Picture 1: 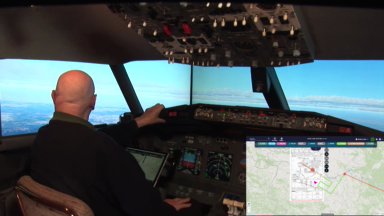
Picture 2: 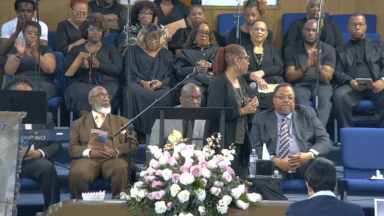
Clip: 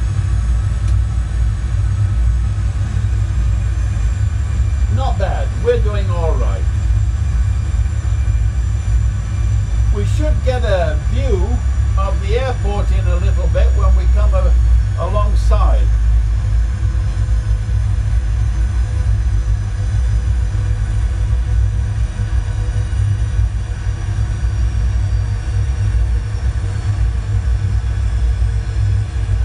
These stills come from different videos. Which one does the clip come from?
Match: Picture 1